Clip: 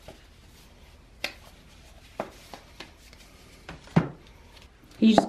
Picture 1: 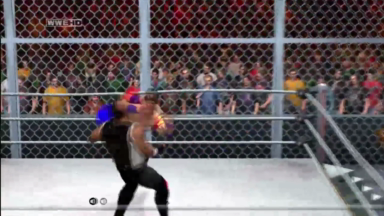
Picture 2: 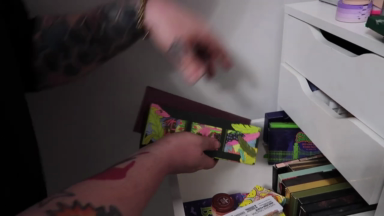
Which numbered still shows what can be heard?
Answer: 2